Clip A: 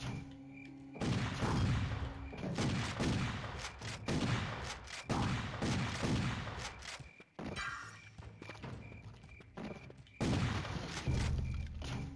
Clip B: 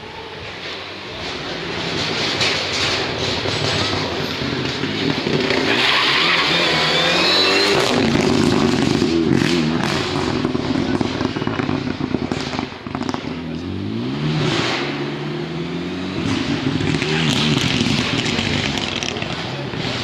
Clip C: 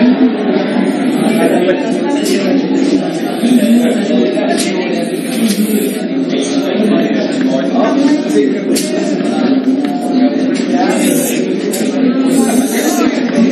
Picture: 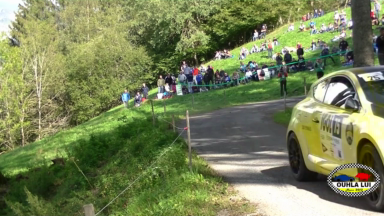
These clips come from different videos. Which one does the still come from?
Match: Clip B